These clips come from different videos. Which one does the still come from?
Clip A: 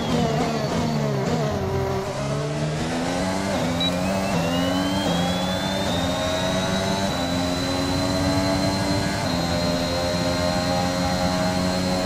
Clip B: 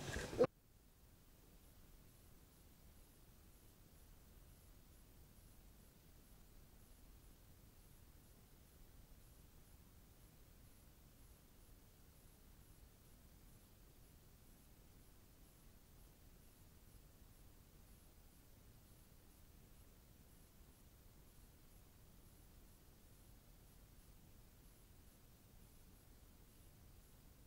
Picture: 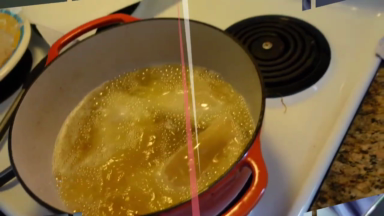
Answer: B